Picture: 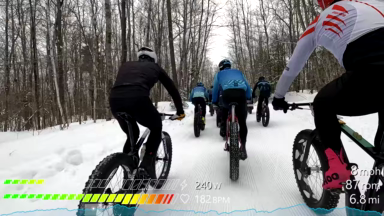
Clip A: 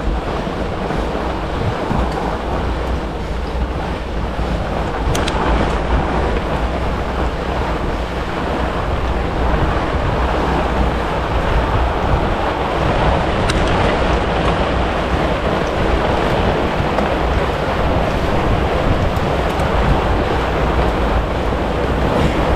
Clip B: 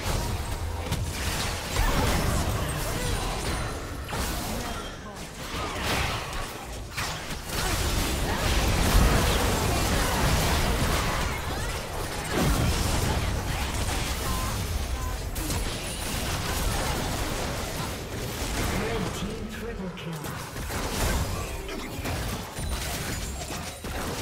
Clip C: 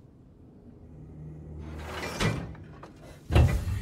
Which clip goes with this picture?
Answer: A